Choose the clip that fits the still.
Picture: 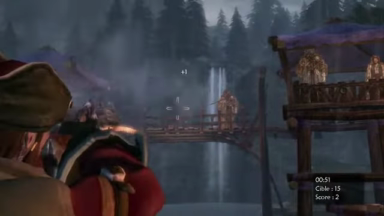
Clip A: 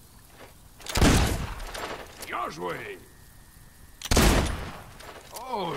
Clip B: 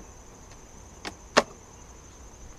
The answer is A